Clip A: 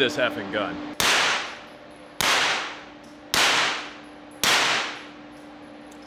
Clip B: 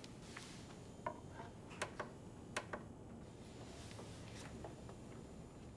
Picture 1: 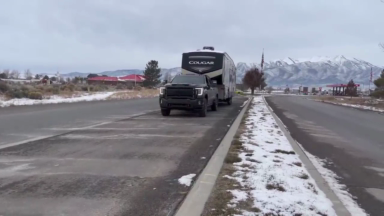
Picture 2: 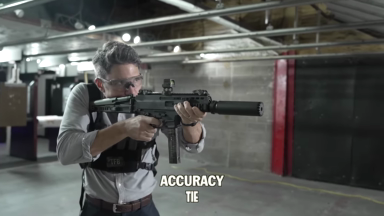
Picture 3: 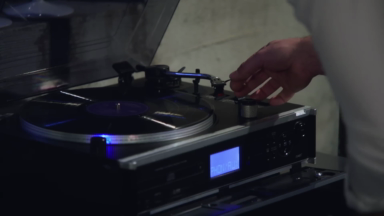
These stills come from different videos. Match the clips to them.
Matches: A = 2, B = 3